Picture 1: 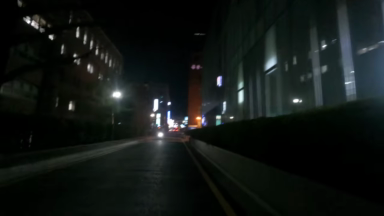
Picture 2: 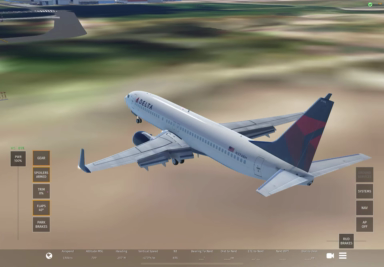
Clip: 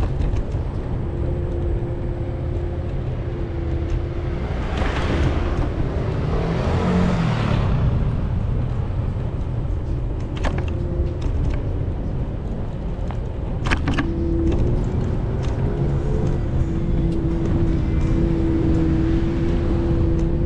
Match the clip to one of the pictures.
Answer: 1